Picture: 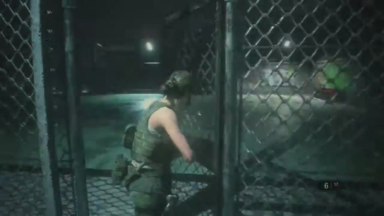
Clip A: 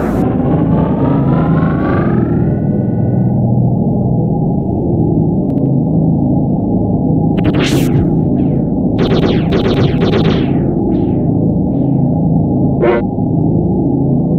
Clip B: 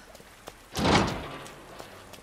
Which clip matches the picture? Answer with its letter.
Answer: B